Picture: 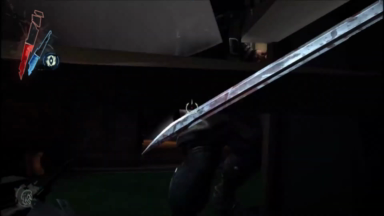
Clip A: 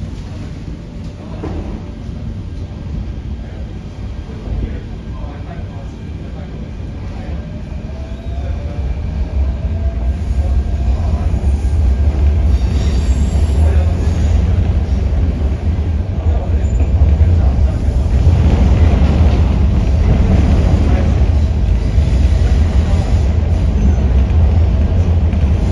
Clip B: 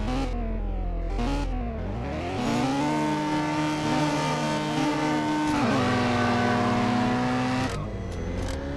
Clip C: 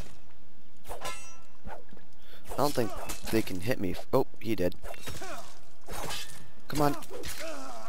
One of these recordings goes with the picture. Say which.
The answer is C